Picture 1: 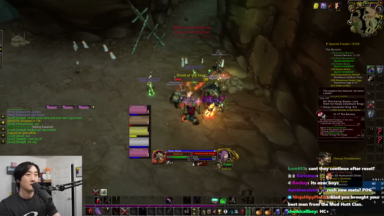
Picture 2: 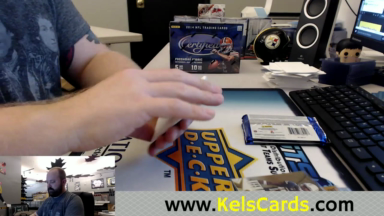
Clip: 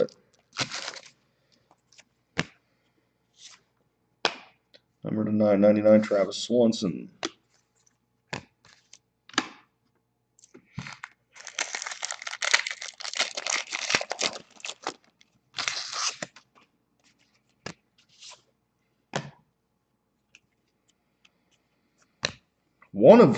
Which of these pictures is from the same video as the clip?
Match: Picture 2